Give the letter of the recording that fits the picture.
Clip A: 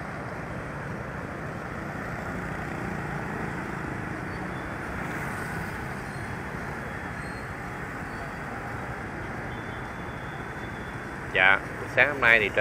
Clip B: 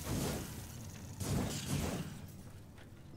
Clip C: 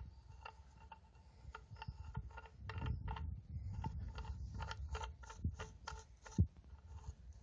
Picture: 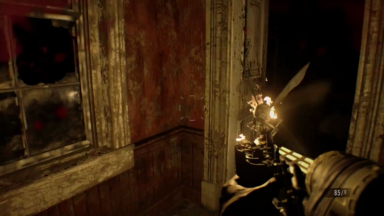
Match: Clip B